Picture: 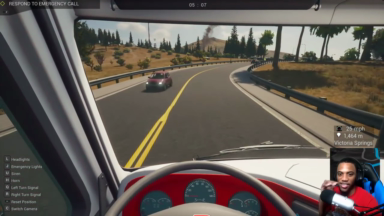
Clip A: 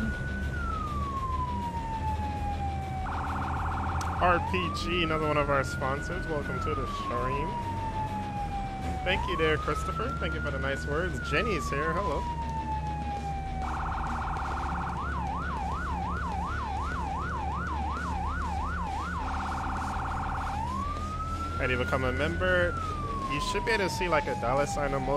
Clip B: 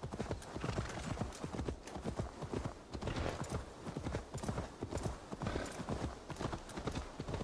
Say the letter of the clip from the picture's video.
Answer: A